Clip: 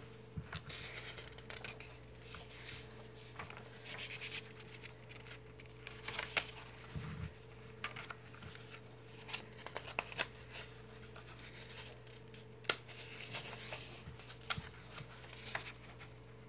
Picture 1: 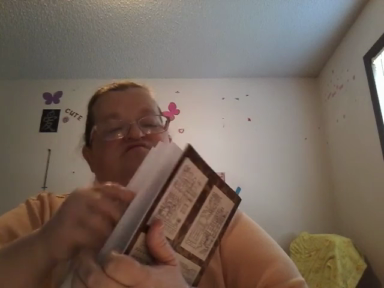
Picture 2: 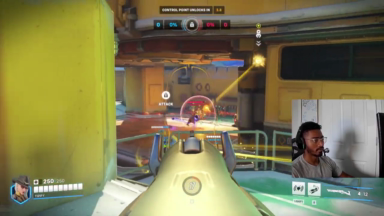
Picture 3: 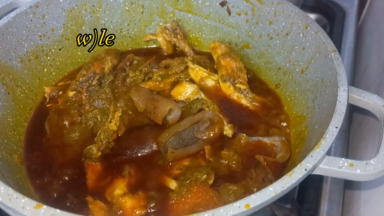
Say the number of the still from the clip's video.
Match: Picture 1